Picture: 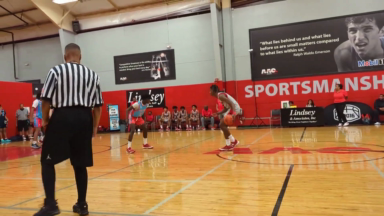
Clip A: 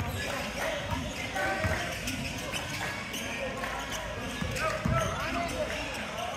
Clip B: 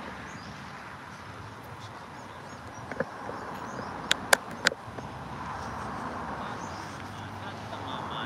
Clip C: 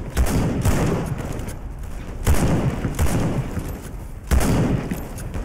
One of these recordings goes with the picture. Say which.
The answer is A